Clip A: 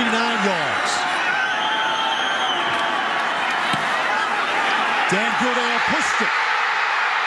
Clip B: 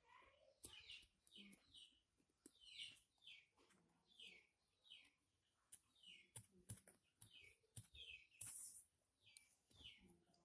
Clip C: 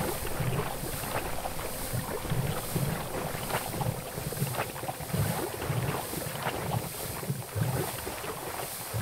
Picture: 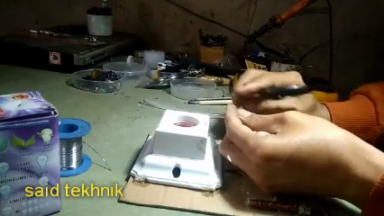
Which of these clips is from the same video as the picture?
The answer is B